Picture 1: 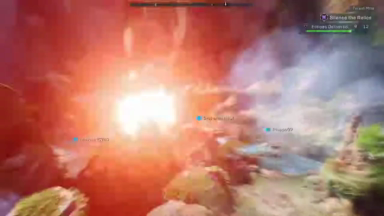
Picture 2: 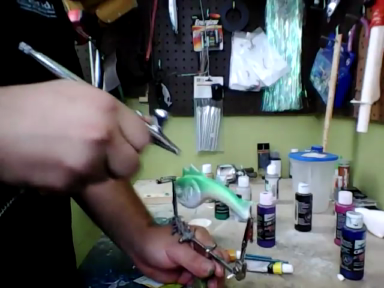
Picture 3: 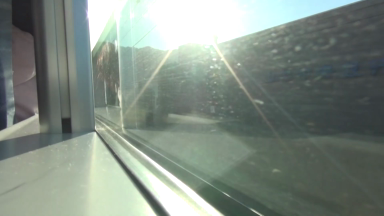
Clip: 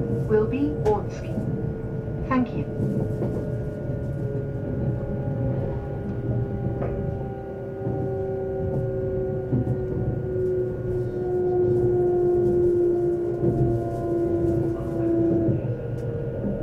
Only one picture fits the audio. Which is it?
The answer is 3